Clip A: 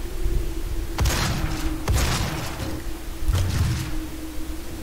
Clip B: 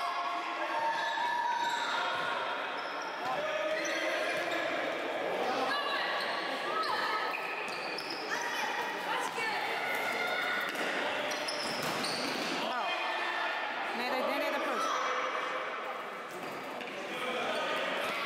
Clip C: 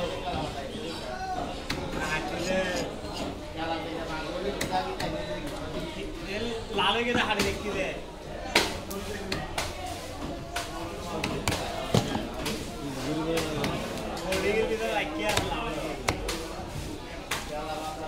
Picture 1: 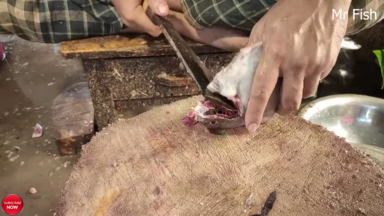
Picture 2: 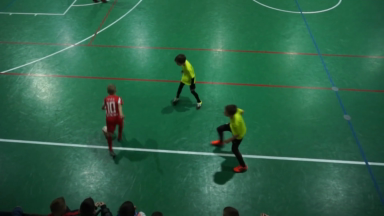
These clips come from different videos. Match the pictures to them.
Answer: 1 C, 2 B